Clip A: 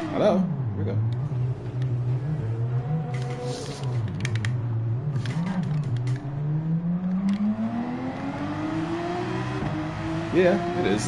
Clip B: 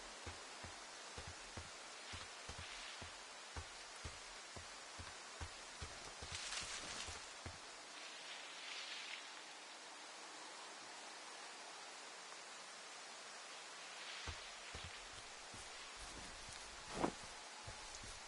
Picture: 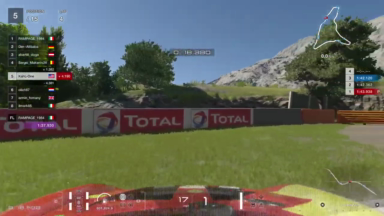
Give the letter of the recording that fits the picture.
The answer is A